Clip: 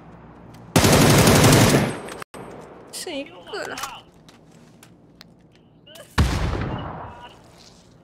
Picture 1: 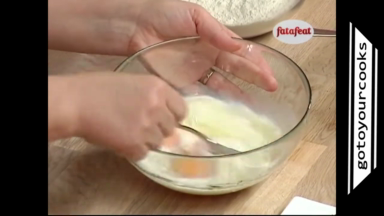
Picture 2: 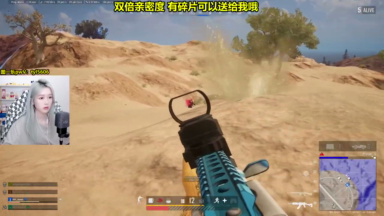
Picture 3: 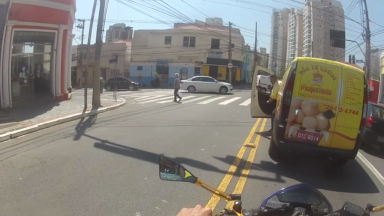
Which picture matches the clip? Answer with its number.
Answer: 2